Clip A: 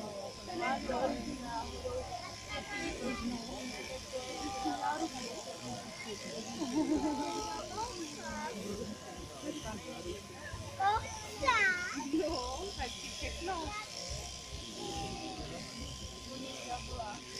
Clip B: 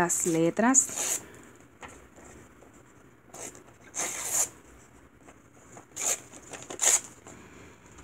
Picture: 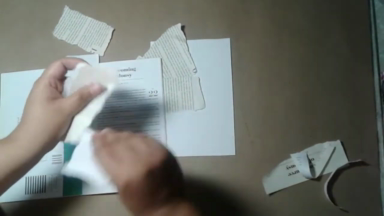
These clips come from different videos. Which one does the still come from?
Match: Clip B